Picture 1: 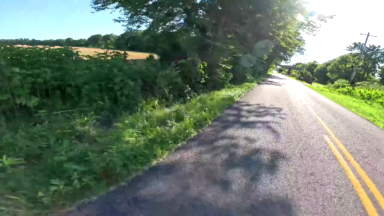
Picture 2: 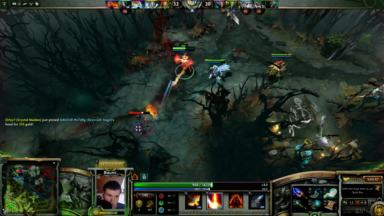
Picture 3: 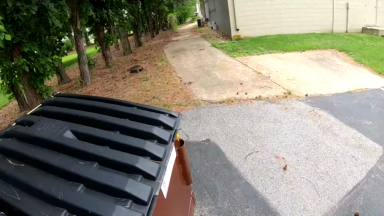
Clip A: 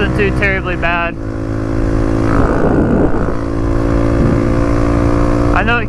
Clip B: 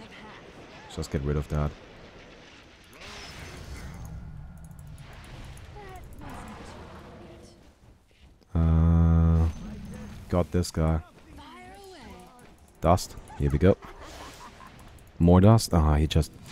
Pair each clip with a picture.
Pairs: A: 1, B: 2